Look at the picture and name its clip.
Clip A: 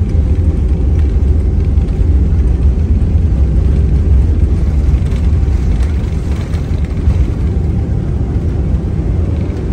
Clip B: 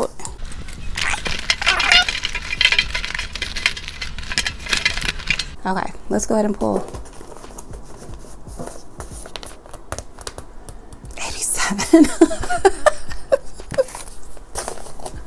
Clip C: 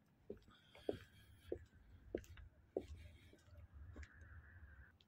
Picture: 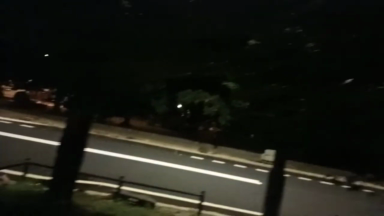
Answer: C